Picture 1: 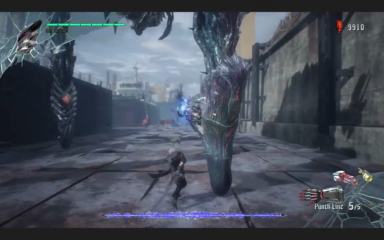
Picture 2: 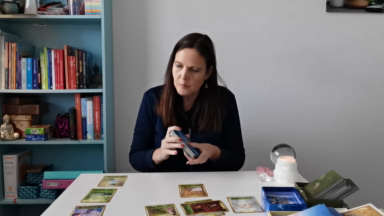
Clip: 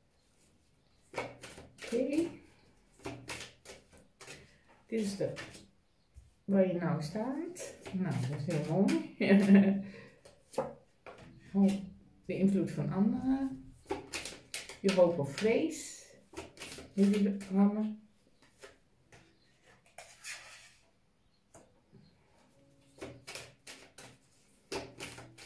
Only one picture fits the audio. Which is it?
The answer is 2